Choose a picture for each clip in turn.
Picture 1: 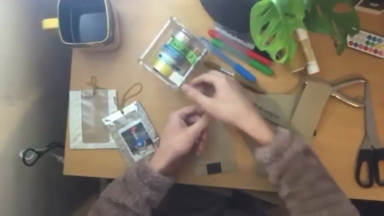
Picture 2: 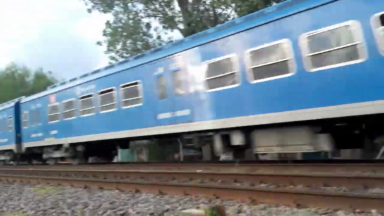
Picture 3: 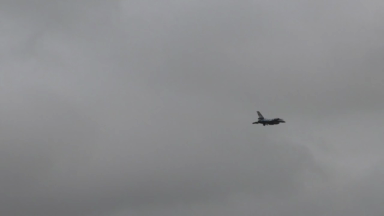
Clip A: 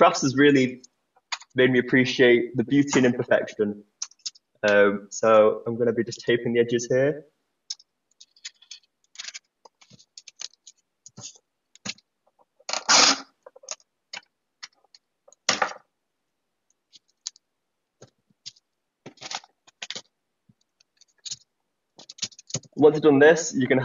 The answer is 1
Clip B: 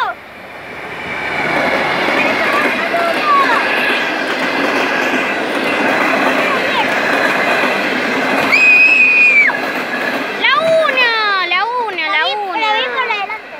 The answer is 2